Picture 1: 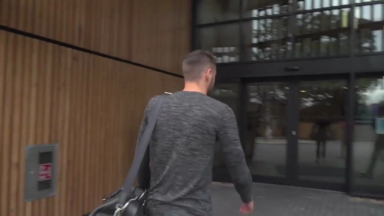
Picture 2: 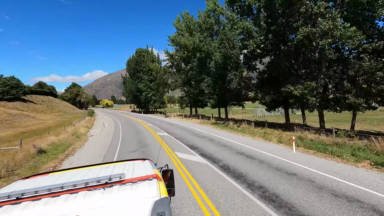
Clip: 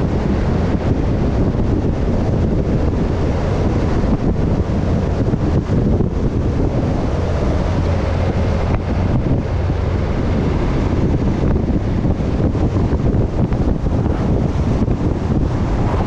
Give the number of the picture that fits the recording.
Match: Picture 2